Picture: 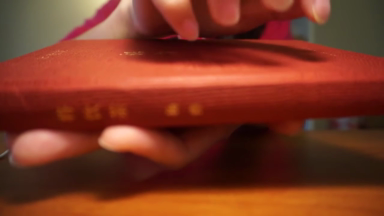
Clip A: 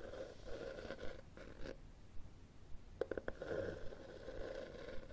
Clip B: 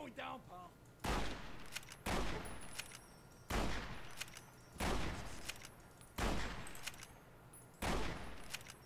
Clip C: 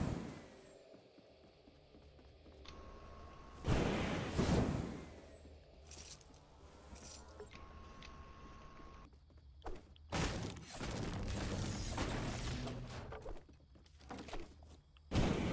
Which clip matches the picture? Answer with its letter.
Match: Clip A